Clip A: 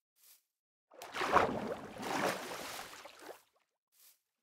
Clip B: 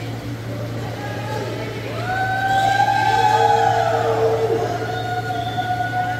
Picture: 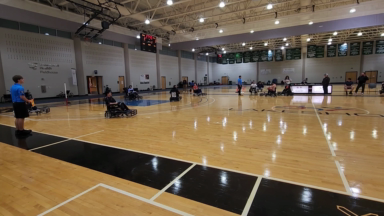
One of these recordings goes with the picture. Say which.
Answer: B